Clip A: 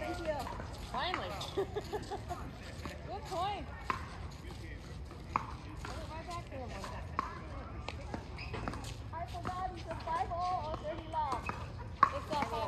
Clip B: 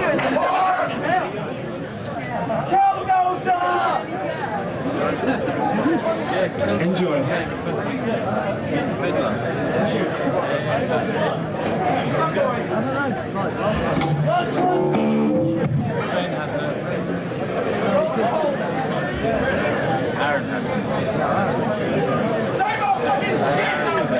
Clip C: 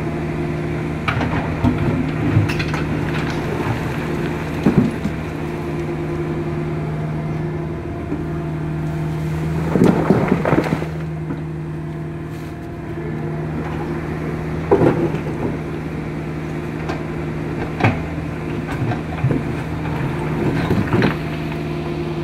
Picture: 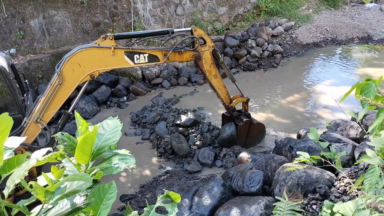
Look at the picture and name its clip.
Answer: C